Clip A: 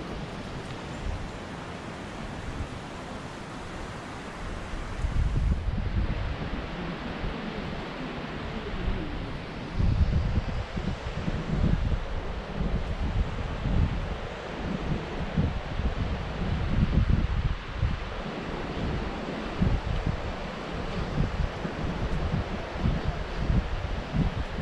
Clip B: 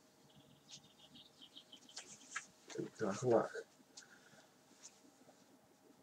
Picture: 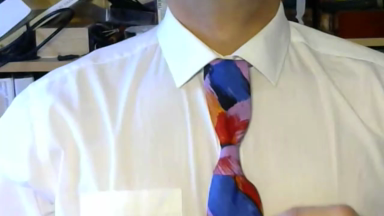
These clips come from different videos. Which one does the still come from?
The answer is B